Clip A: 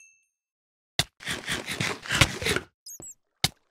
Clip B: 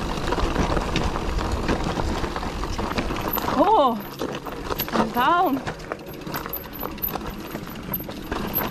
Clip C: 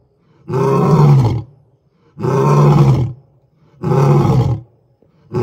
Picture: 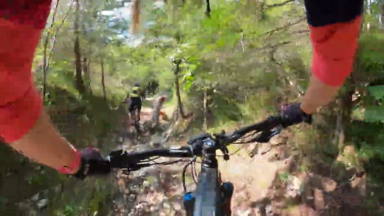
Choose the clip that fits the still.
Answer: B